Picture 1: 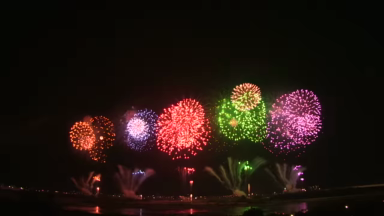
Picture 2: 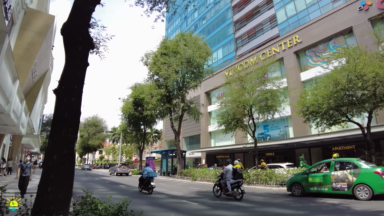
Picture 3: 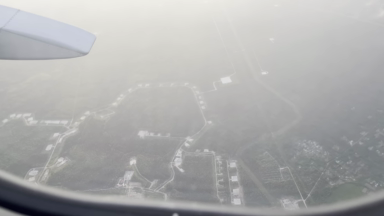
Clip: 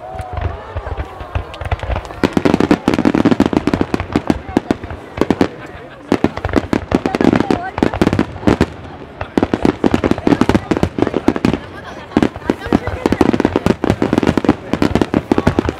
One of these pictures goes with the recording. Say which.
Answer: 1